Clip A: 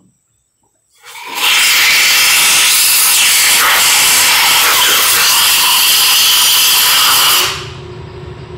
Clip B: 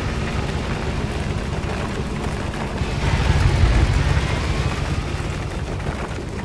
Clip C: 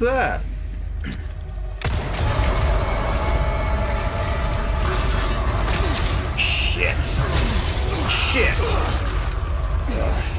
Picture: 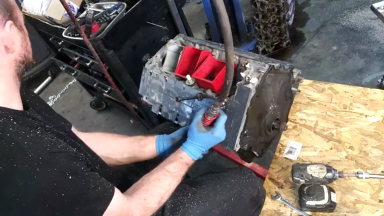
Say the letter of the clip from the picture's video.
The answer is A